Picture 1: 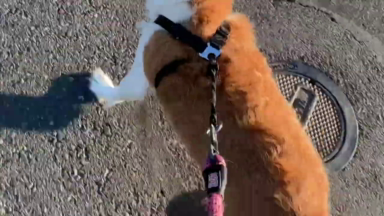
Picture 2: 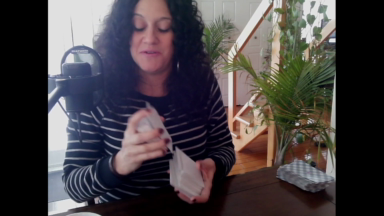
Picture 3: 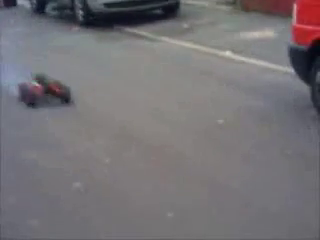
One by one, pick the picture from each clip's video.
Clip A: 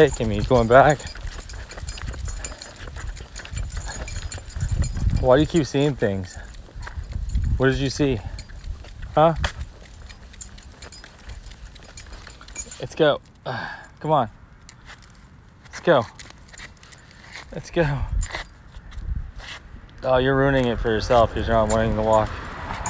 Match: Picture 1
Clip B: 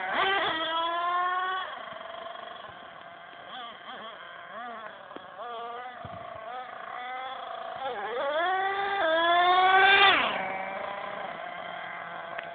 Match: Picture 3